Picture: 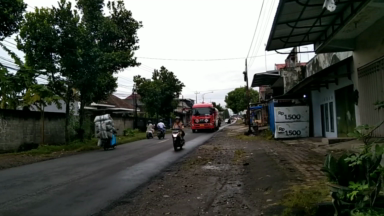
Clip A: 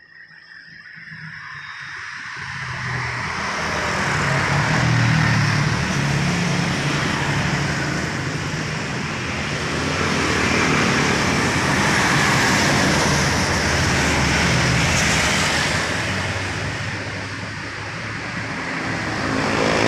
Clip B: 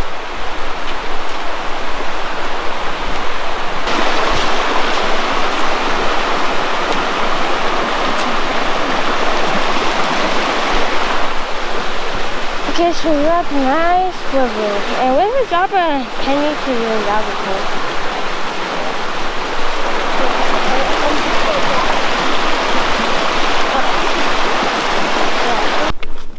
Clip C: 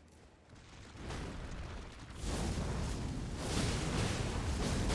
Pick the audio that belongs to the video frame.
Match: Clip A